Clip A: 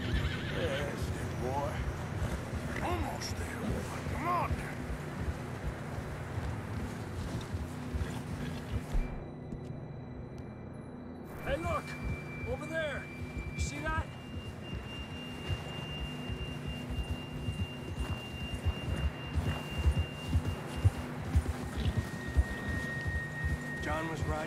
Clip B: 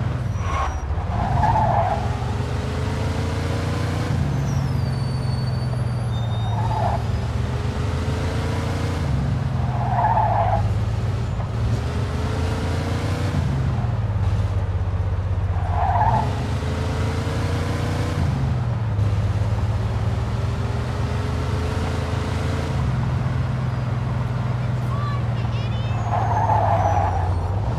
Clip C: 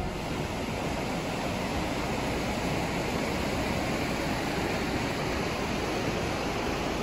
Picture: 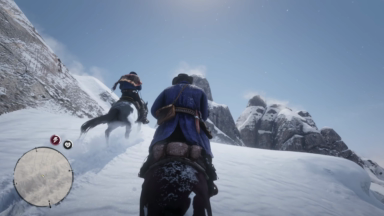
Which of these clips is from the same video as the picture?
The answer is A